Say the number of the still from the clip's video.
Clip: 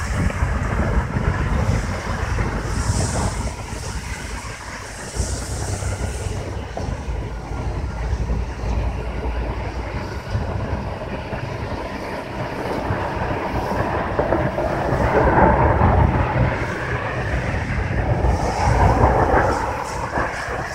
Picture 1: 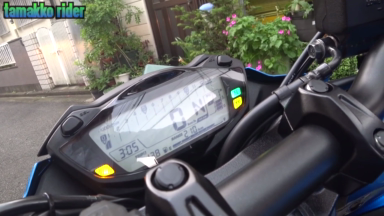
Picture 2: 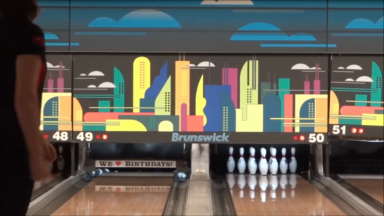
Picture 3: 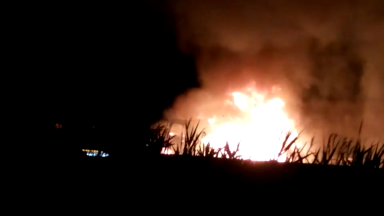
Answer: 3